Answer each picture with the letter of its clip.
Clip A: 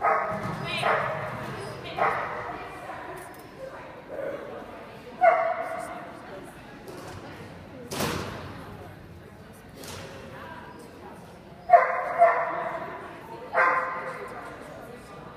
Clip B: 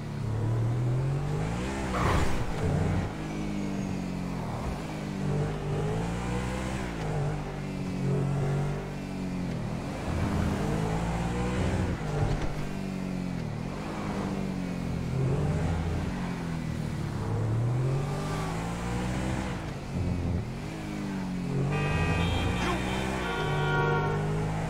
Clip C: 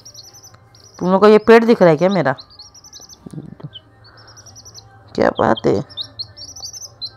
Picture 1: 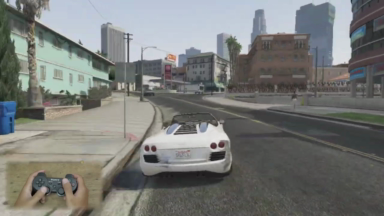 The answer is B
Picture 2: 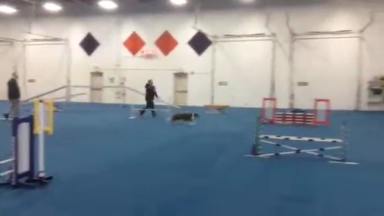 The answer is A